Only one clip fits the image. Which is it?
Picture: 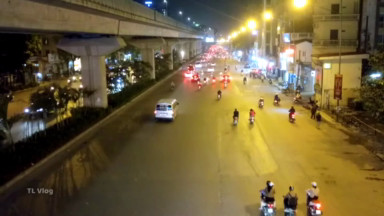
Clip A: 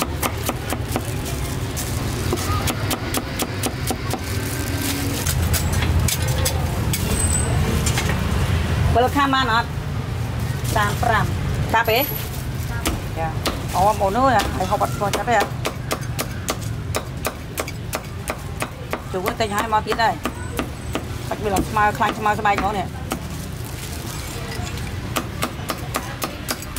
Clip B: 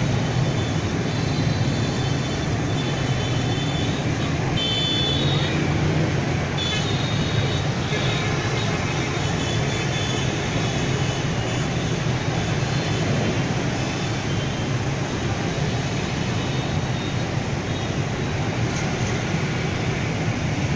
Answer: B